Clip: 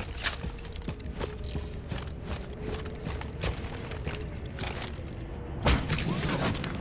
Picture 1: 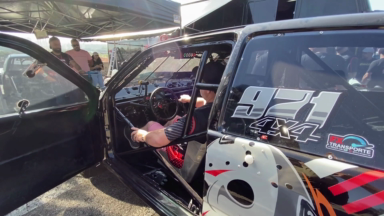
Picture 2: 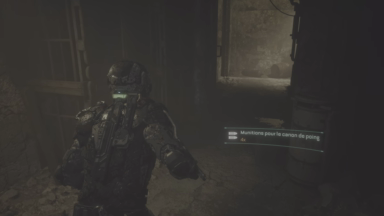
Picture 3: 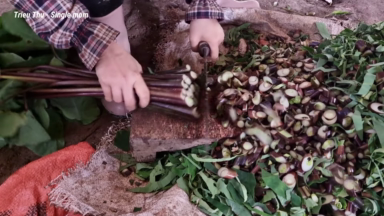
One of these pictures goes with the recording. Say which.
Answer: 2